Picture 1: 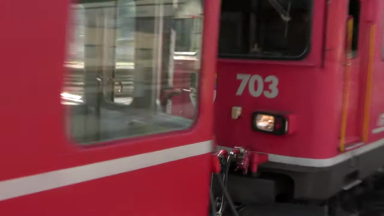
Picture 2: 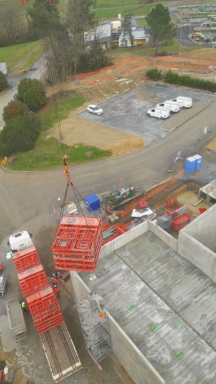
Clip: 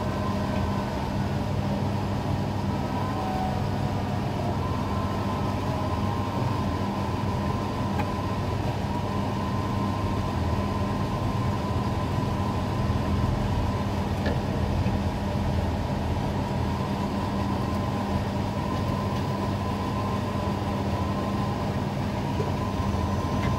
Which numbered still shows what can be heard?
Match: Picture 2